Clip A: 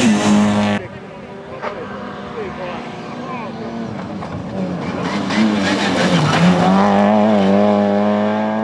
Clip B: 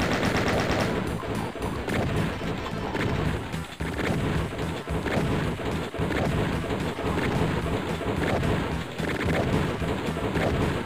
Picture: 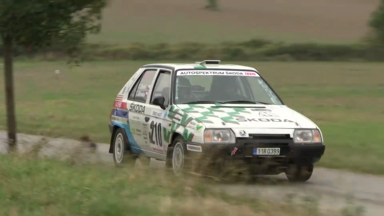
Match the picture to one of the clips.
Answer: A